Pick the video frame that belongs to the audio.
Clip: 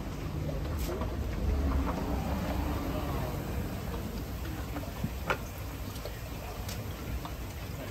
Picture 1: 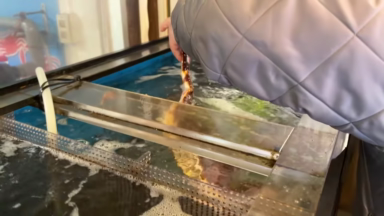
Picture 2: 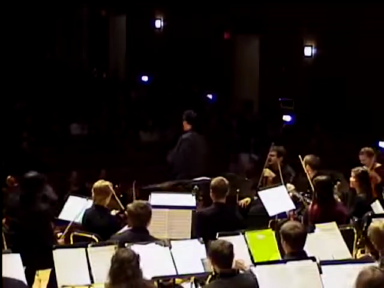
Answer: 1